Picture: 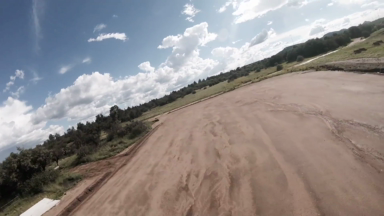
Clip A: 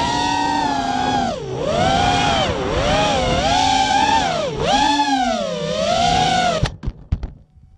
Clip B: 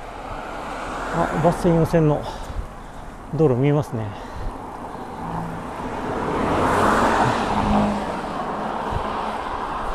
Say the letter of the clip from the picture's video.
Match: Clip A